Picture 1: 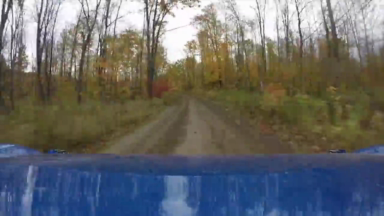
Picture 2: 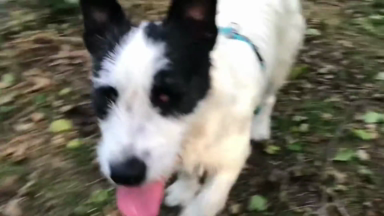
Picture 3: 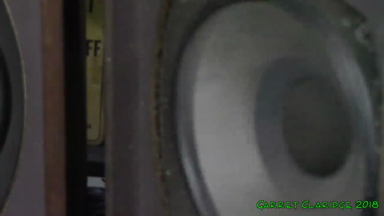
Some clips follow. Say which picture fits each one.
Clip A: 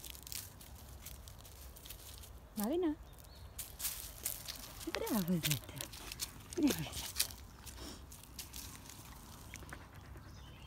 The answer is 2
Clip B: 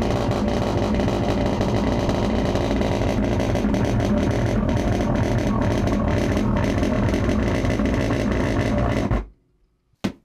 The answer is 3